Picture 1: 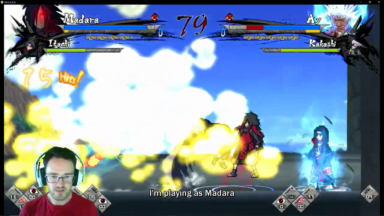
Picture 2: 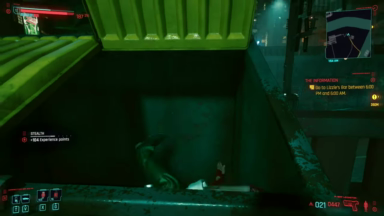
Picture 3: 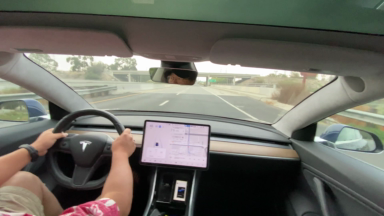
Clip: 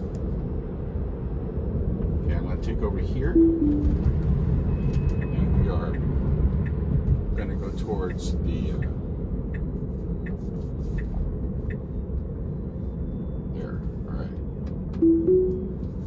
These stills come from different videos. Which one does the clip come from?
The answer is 3